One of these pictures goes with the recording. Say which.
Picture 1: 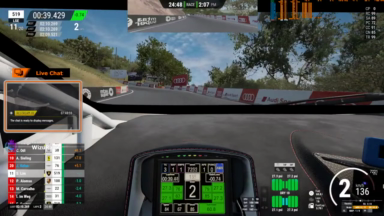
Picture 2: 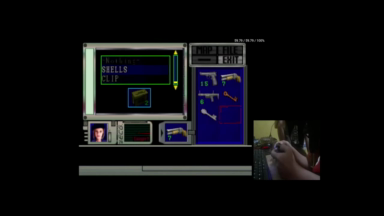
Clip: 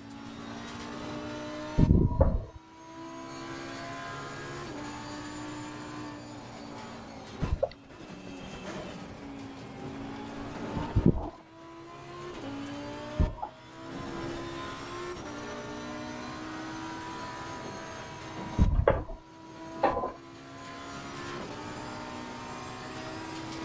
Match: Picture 1